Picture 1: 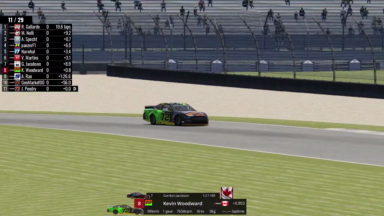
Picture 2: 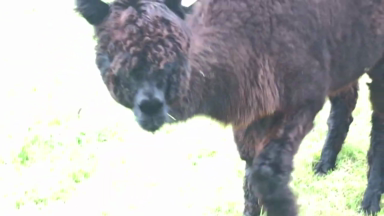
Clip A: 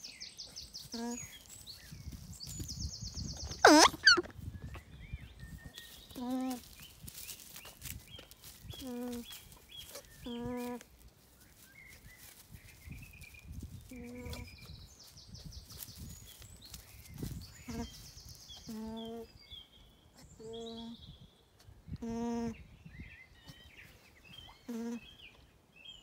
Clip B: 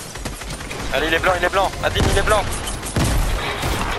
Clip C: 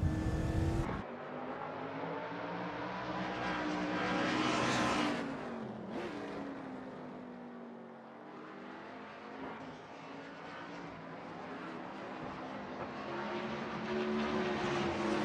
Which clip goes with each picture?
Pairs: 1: C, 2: A